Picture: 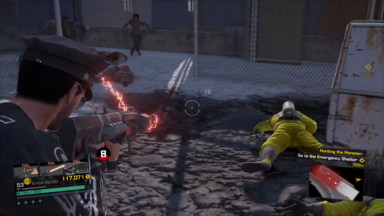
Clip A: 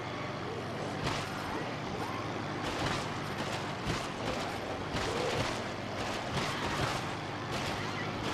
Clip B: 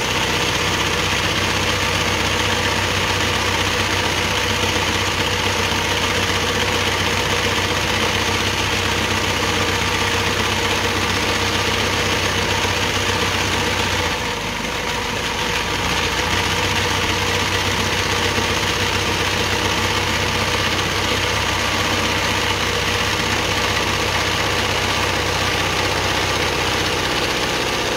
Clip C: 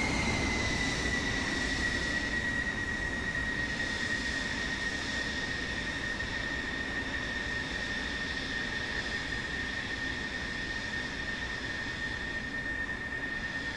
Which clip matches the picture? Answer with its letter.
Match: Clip A